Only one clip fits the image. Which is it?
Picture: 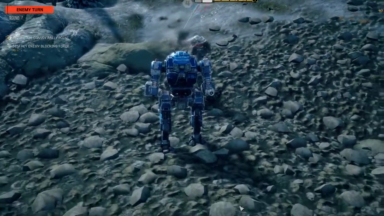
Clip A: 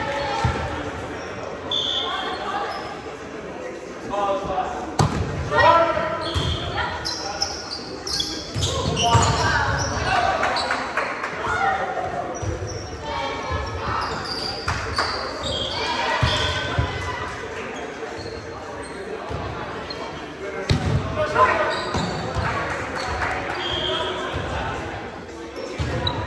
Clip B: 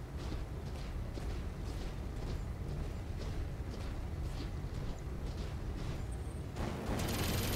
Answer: B